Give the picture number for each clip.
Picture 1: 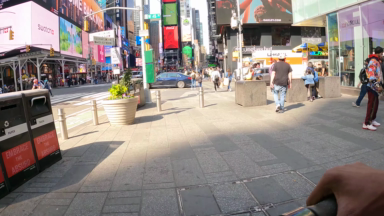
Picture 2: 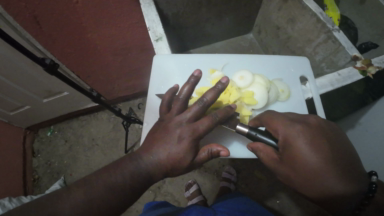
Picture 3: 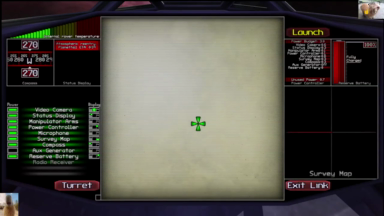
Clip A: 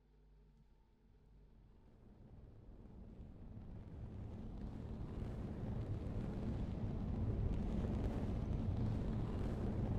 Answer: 3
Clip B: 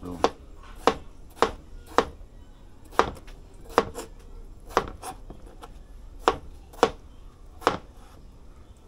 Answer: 2